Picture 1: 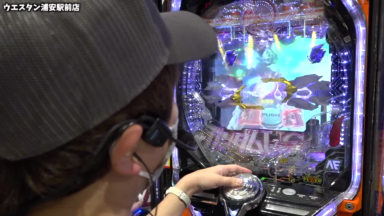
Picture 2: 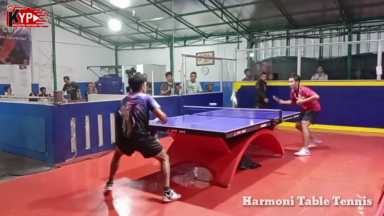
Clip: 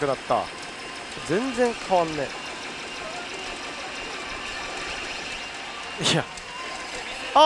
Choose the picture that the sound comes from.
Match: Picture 1